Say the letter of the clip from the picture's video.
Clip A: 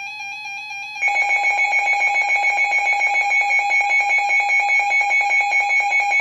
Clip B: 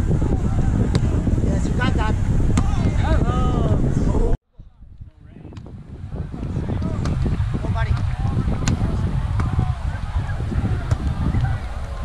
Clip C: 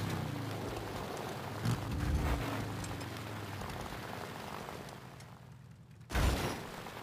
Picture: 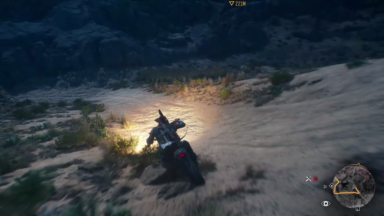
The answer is C